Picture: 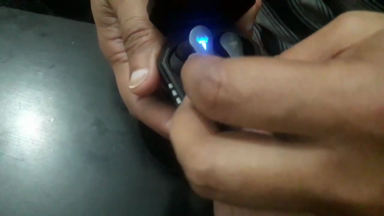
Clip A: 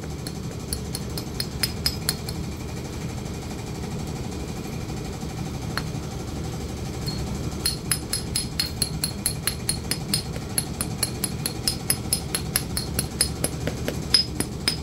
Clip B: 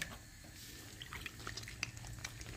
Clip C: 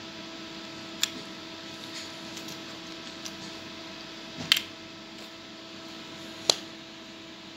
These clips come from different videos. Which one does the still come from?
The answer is C